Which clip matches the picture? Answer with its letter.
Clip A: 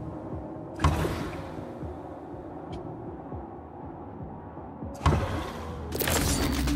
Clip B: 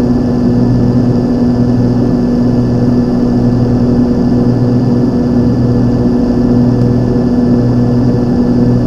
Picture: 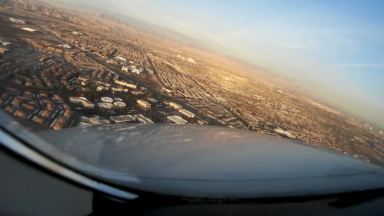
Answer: B